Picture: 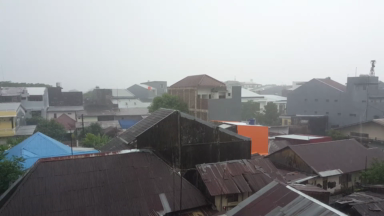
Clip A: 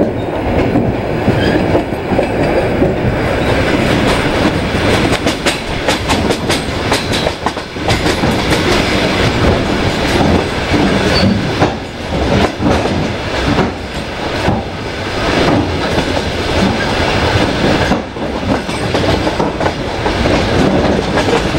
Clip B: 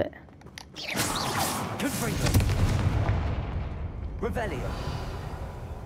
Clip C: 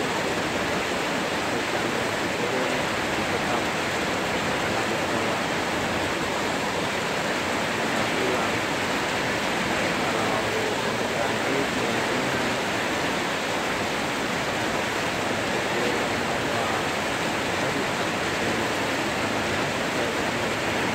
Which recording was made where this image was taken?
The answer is C